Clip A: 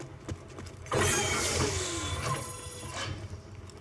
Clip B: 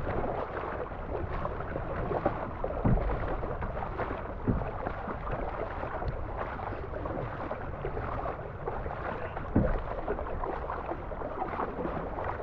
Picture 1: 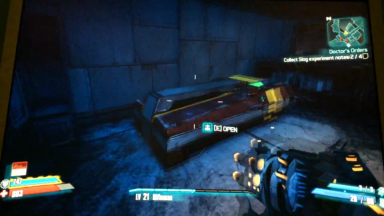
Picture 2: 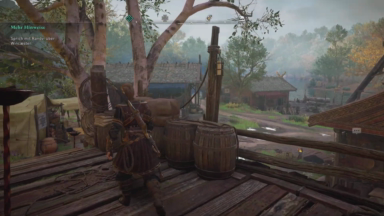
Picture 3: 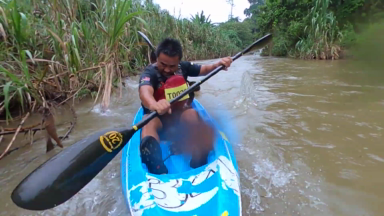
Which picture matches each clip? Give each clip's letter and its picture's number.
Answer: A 1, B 3